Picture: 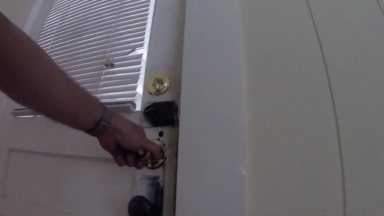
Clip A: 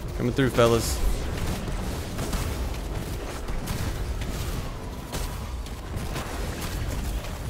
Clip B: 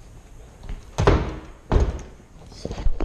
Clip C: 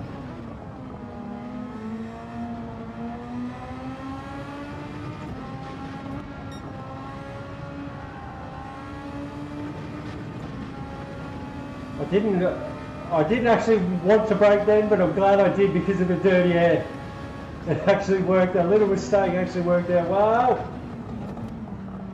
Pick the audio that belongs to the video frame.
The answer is B